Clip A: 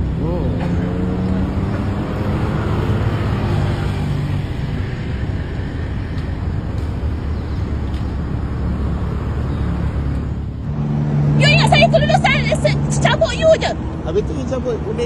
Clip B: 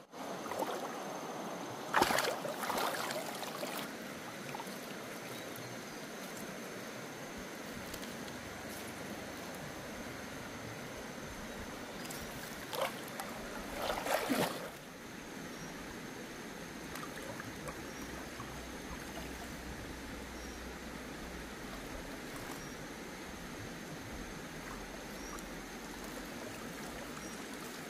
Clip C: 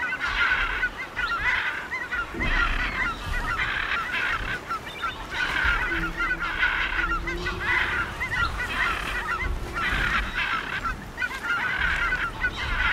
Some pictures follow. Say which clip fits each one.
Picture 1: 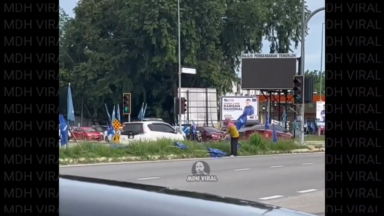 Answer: A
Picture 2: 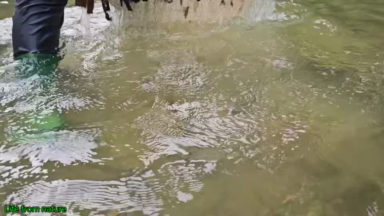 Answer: B